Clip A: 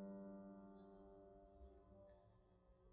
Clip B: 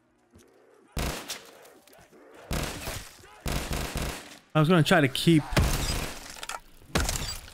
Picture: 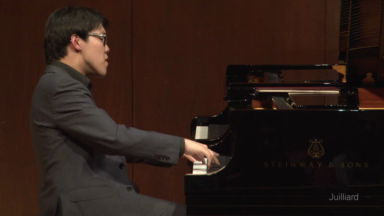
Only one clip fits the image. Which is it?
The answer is A